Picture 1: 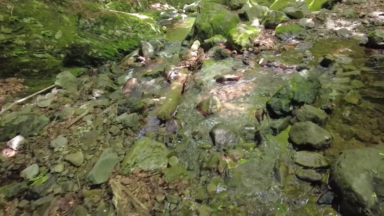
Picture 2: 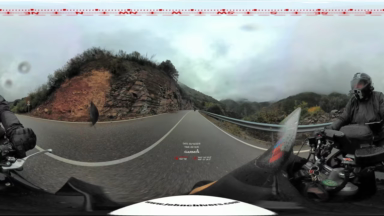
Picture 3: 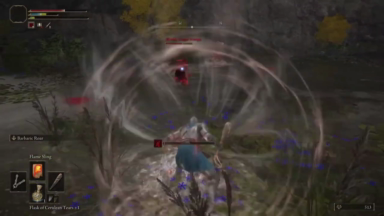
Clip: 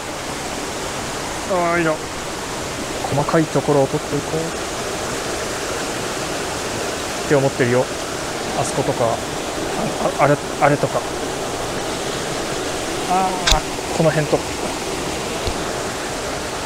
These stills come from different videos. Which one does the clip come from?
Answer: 1